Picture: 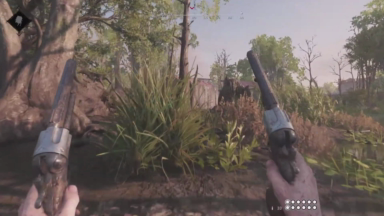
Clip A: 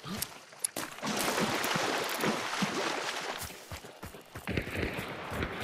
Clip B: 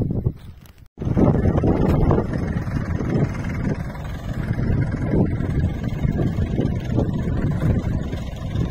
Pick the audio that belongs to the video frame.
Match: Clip A